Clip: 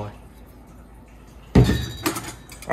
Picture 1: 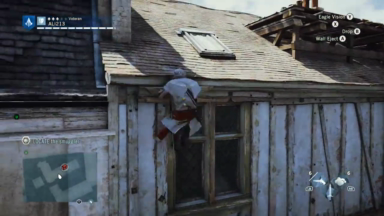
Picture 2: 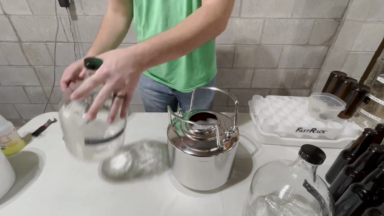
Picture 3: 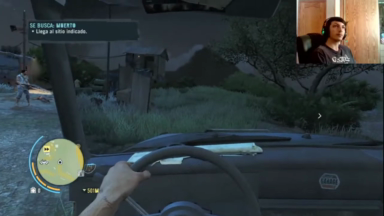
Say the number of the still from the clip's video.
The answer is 2